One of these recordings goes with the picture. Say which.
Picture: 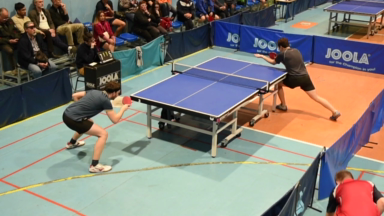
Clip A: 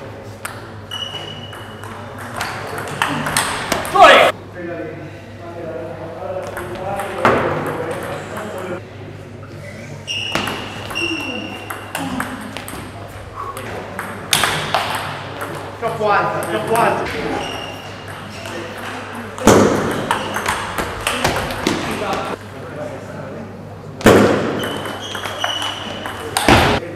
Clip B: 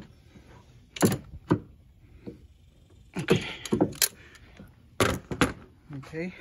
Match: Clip A